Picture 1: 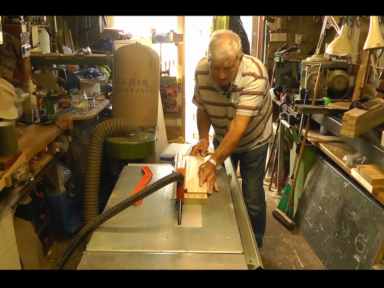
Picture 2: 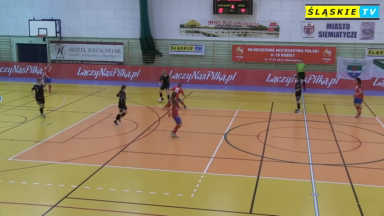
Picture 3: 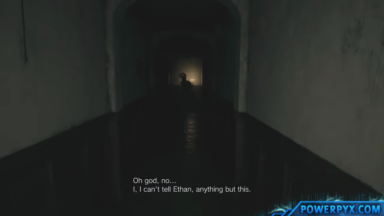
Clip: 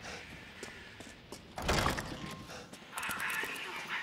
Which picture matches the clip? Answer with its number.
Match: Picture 3